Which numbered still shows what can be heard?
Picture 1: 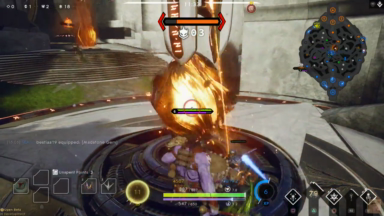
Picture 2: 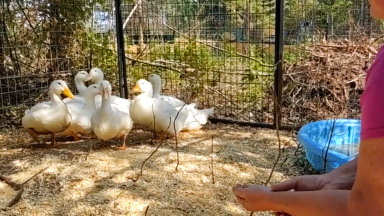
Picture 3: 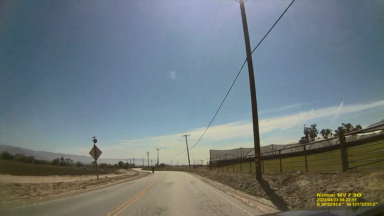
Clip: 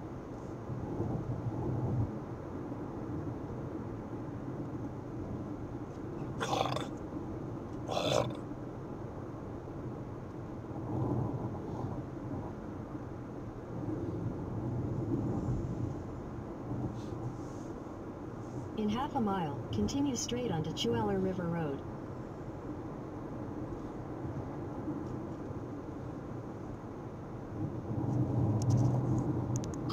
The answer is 3